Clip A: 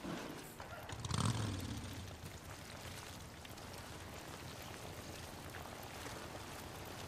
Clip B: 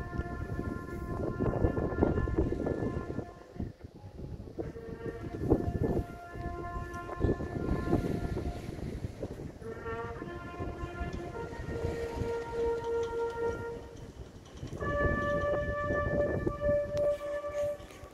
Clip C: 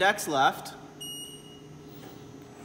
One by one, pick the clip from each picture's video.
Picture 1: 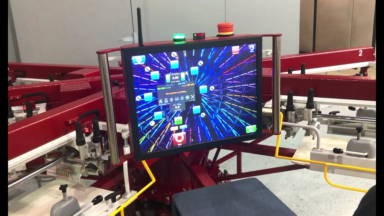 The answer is C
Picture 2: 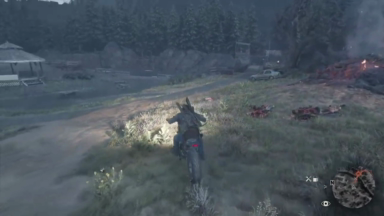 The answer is A